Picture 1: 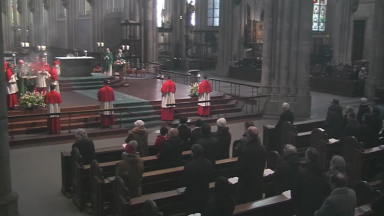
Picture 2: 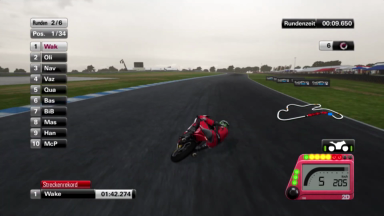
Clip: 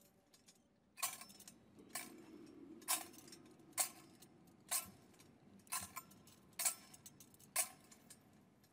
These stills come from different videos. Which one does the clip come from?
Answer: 1